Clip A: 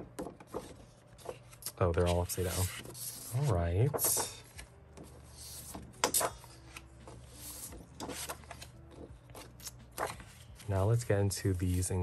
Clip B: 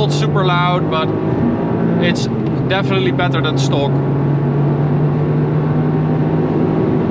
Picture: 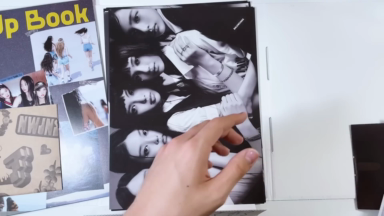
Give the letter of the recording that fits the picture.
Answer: A